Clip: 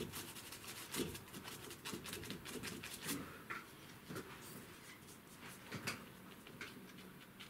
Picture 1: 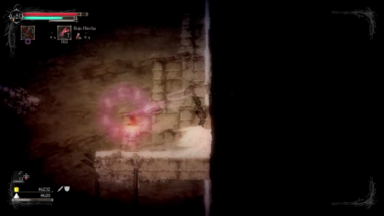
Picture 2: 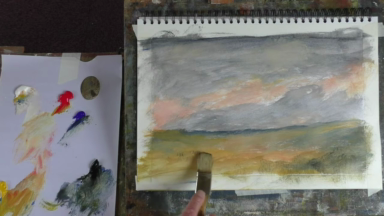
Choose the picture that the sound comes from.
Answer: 2